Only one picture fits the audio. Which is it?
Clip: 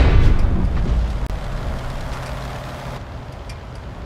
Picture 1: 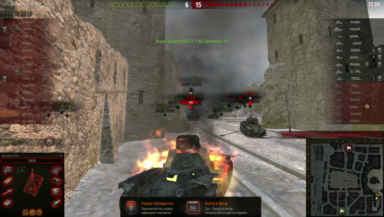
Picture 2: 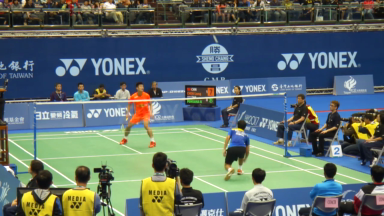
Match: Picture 1